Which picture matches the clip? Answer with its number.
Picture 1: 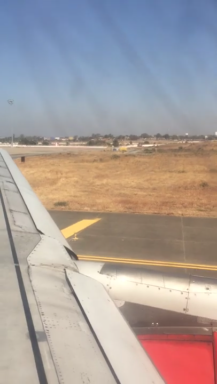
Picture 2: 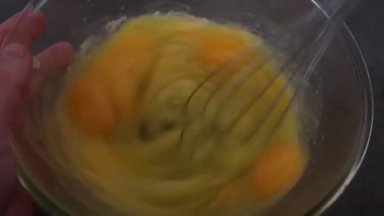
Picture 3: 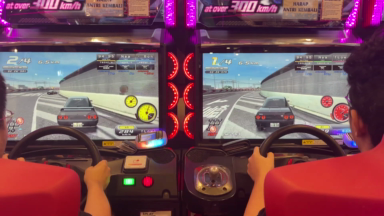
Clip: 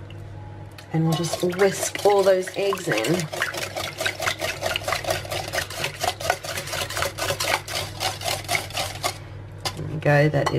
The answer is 2